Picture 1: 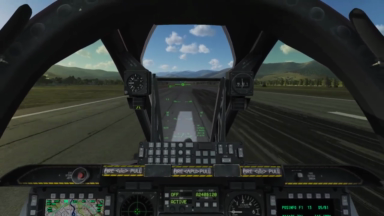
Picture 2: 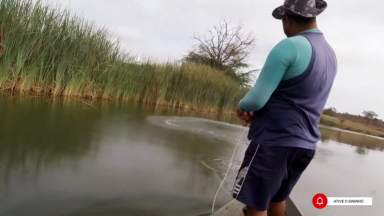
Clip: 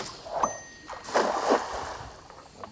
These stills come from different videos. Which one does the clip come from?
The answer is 2